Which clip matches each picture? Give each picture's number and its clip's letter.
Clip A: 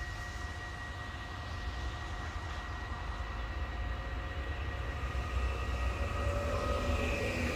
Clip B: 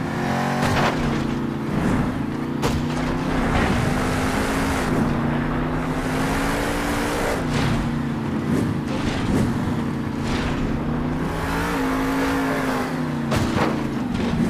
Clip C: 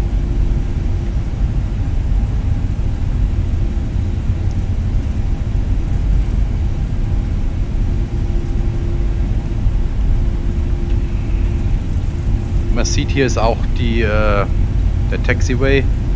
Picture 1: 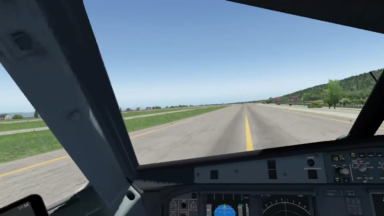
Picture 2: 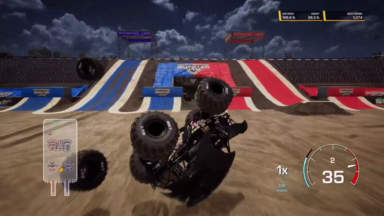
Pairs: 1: C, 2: B